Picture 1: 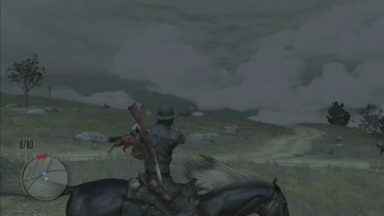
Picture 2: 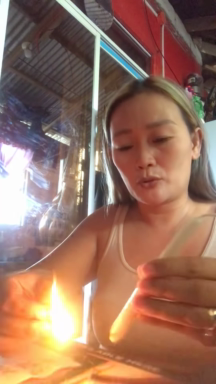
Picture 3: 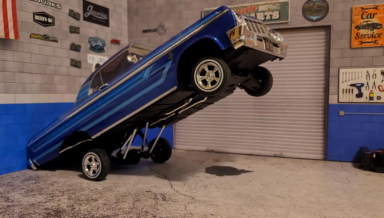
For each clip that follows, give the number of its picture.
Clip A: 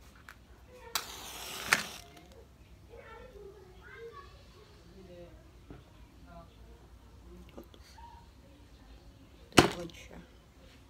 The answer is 2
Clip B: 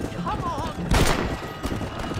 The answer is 1